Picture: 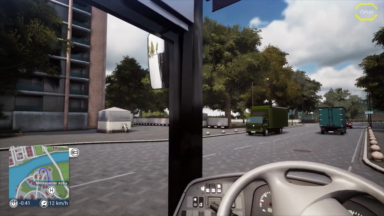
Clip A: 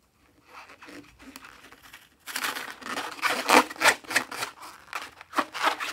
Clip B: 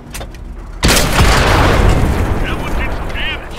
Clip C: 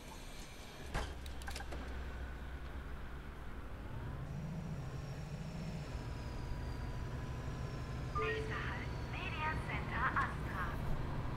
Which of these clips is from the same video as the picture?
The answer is C